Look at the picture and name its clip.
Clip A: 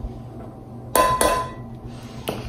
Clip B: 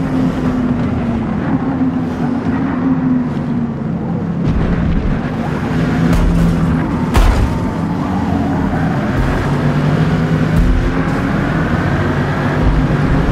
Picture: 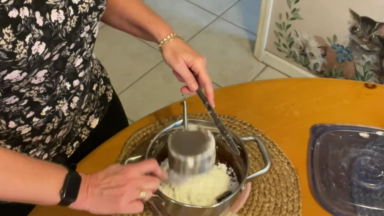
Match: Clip A